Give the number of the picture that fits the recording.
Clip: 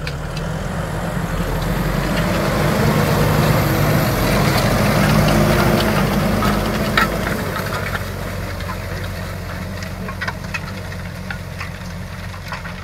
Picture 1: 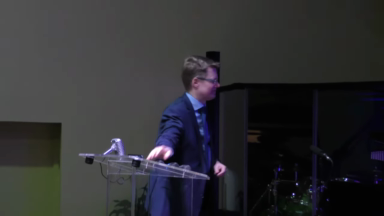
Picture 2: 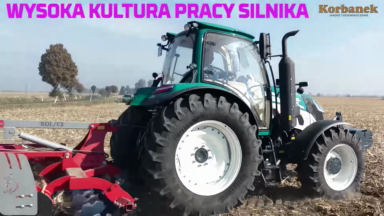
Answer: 2